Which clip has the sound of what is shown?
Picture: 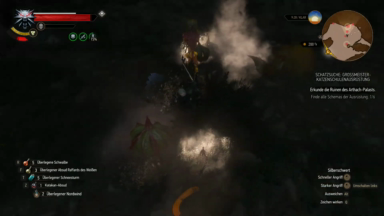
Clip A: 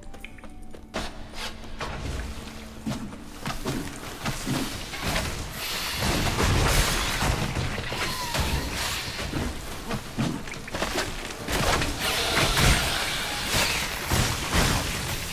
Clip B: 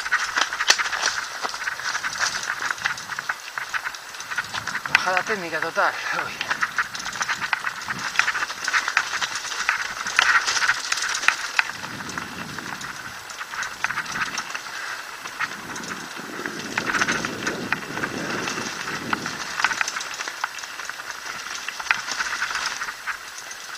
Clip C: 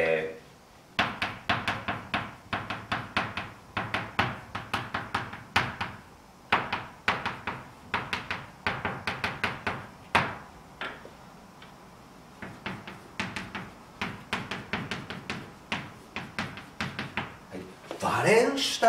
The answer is A